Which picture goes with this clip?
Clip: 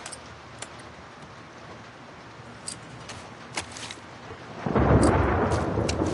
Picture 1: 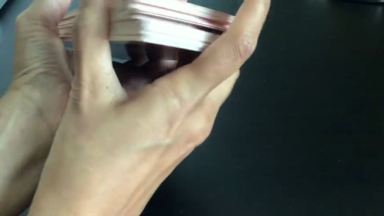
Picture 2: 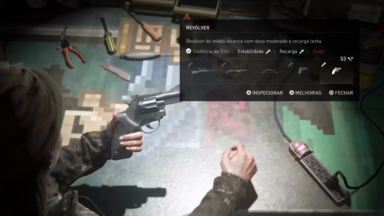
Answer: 2